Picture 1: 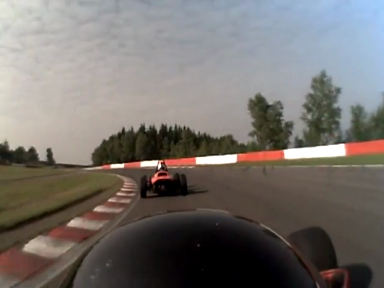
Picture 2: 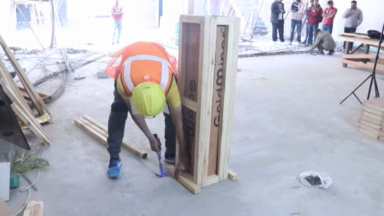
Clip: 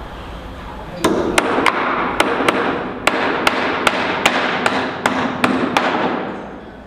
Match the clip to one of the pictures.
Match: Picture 2